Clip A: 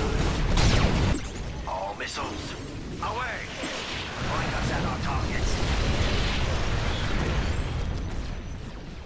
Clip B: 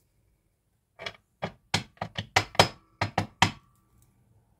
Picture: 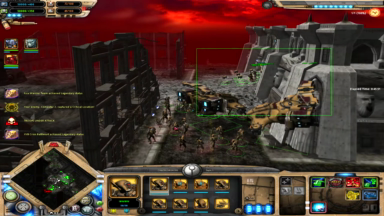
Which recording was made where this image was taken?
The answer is A